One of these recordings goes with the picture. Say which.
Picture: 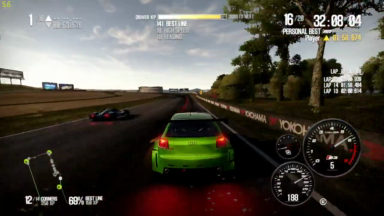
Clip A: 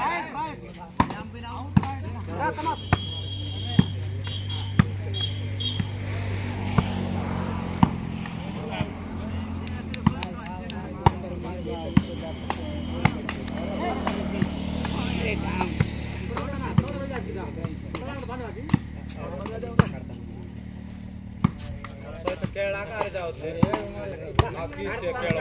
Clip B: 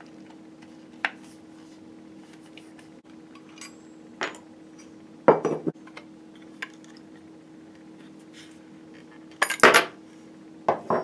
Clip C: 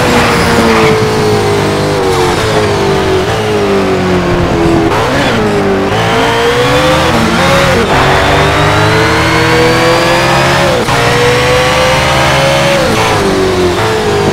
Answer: C